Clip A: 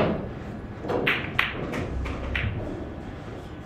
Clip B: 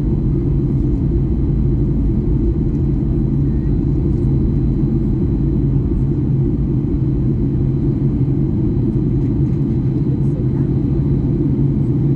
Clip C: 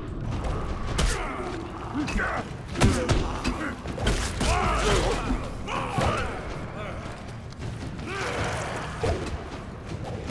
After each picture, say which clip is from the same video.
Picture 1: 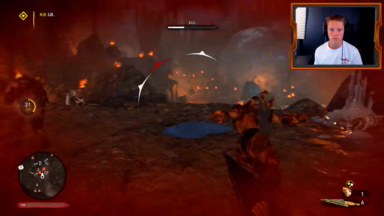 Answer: C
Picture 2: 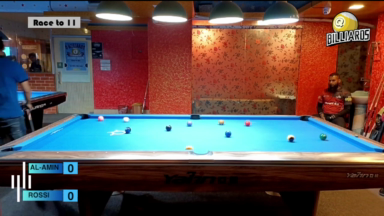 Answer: A